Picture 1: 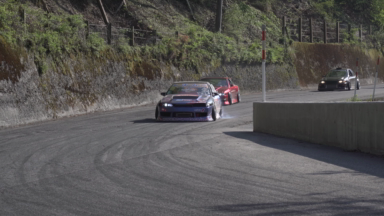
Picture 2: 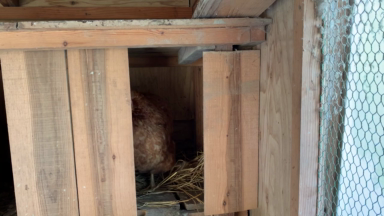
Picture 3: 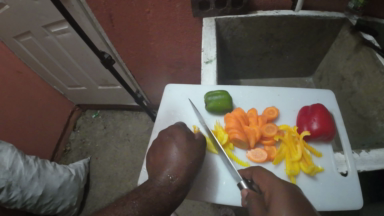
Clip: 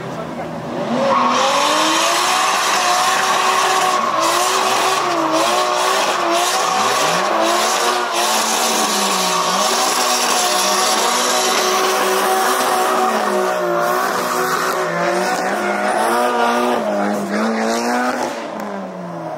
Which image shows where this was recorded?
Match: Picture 1